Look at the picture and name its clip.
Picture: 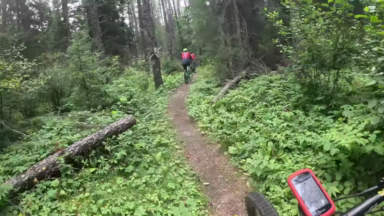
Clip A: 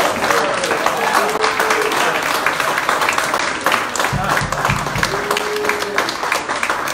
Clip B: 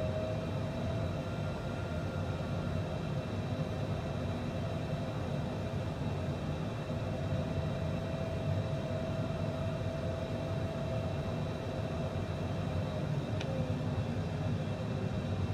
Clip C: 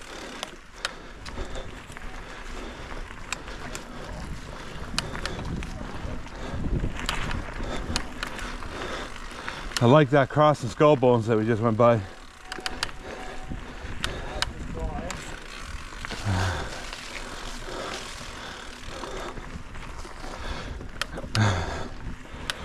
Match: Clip C